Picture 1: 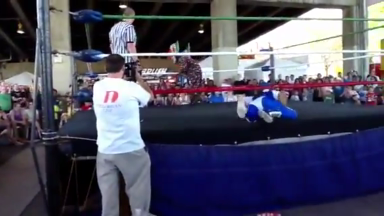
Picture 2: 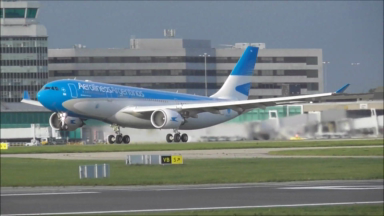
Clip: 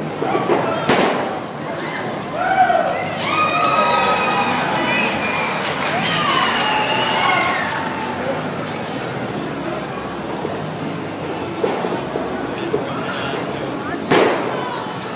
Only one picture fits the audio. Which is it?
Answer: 1